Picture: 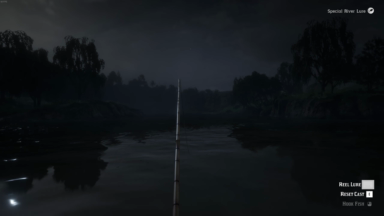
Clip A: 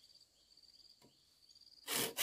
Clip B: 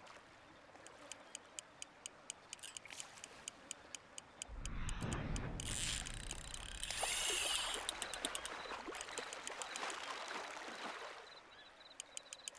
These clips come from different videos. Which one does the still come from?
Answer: B